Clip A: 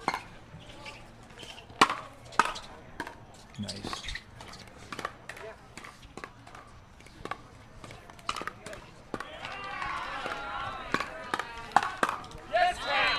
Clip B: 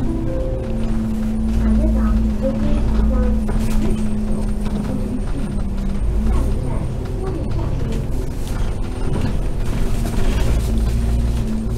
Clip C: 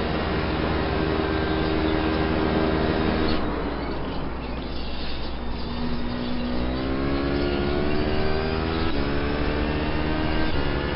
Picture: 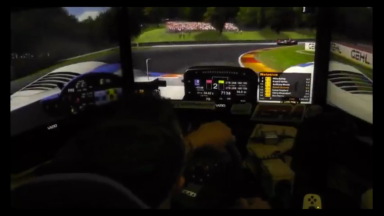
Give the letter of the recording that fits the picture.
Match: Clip C